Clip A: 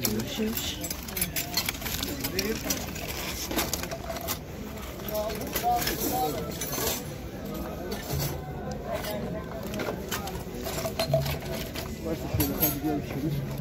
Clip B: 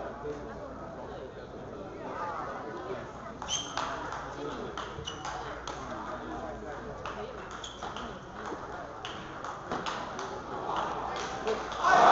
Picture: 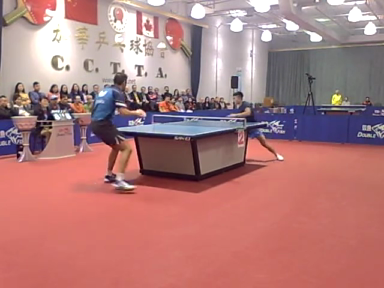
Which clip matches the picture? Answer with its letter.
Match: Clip B